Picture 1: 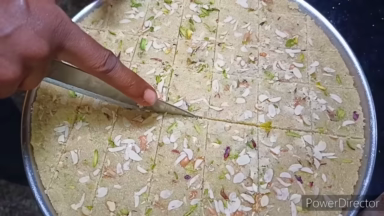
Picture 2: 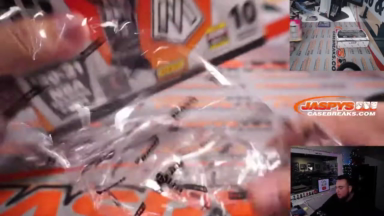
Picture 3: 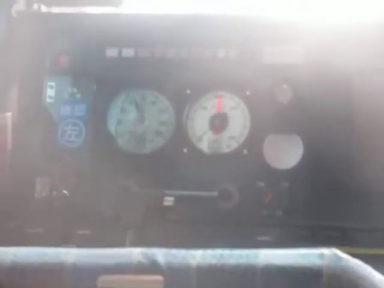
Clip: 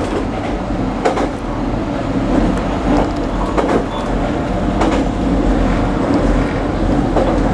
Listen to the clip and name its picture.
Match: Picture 3